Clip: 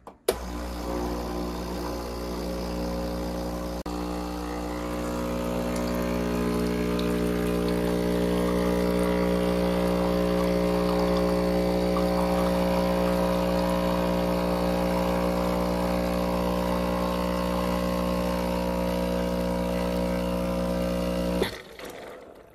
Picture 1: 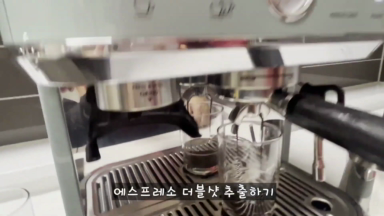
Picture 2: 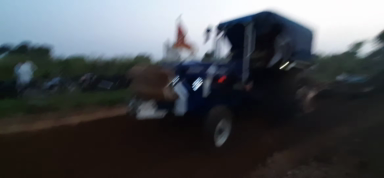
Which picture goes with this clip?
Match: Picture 1